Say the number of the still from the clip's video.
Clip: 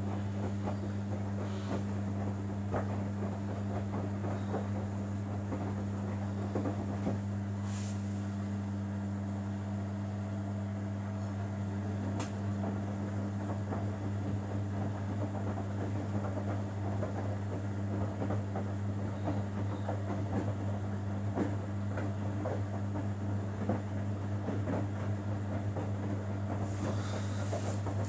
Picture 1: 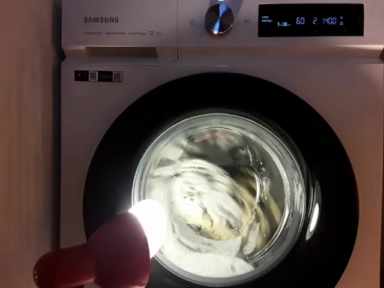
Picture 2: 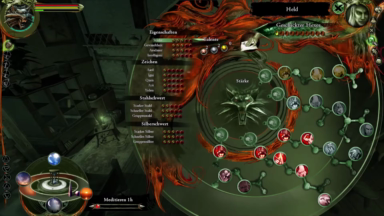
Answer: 1